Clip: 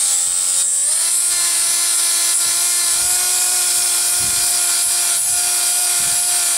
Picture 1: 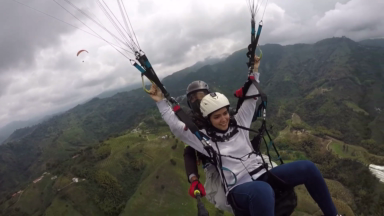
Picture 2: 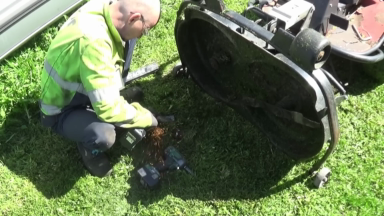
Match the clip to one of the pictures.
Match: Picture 2